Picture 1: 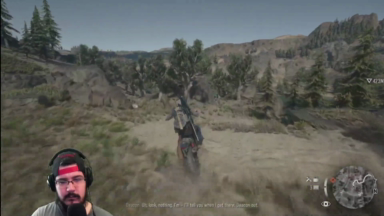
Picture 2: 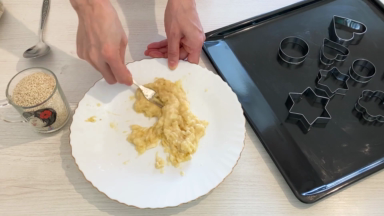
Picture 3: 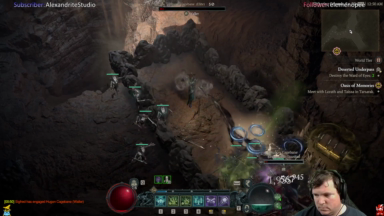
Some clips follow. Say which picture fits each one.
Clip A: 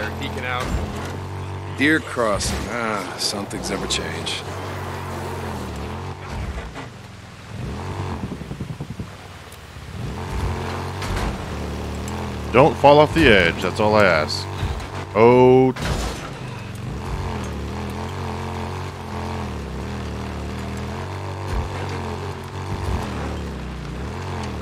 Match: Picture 1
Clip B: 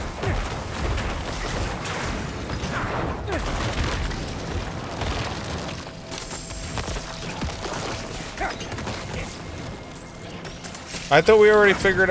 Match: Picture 3